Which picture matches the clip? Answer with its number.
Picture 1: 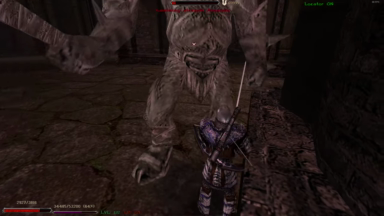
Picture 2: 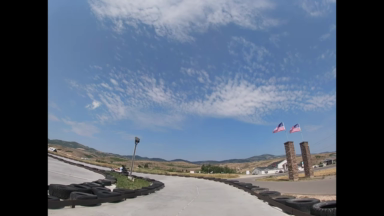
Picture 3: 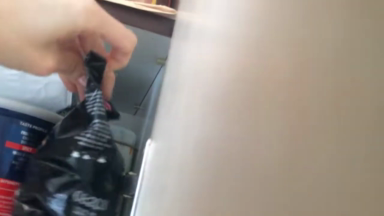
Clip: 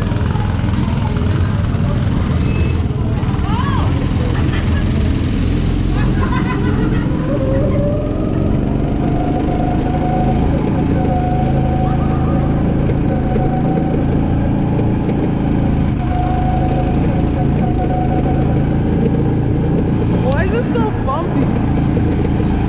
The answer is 2